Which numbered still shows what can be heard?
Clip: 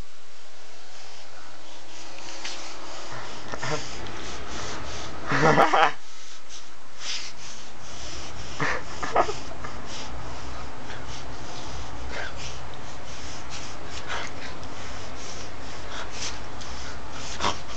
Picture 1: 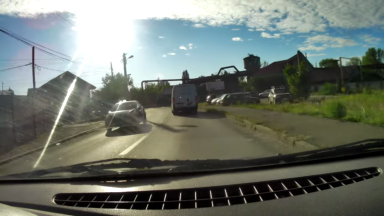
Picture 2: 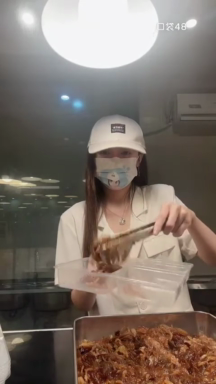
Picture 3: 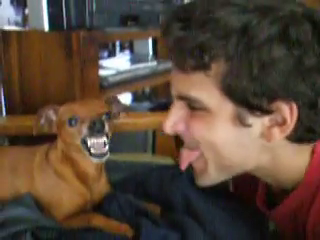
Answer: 3